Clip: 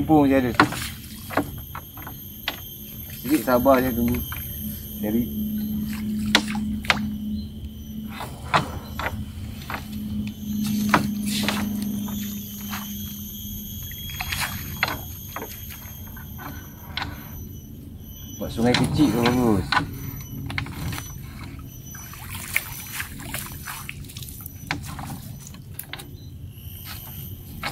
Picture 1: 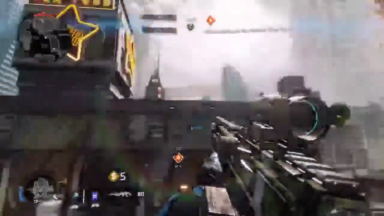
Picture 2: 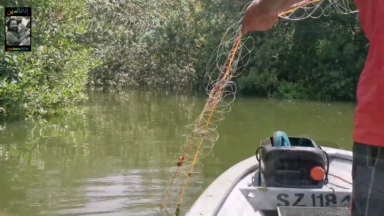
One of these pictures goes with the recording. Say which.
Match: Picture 2